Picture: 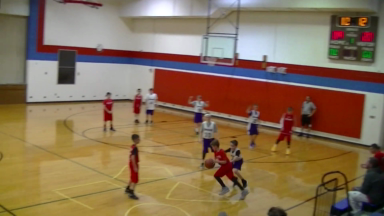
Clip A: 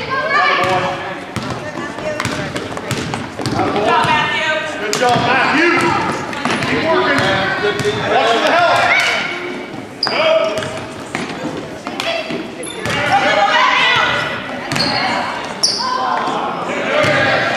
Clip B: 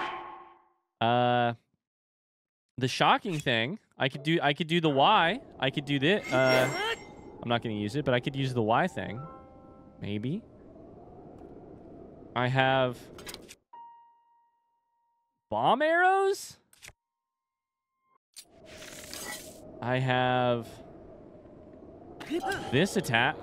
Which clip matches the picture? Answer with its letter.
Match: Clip A